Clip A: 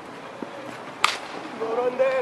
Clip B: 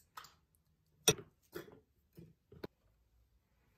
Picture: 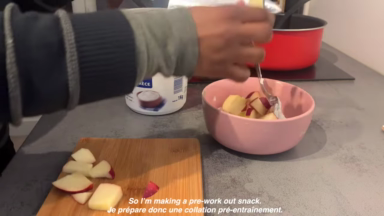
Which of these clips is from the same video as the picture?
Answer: B